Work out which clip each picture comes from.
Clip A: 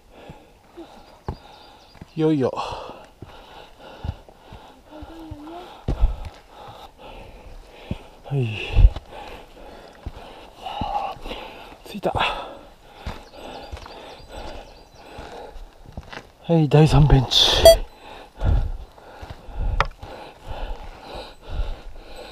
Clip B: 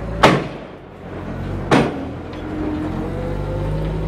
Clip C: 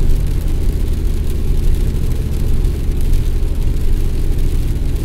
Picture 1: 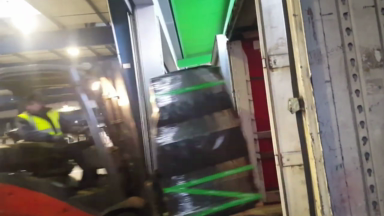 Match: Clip B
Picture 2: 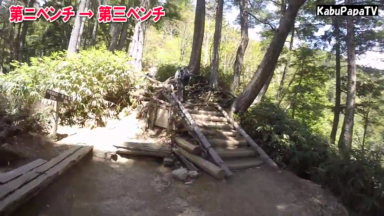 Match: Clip A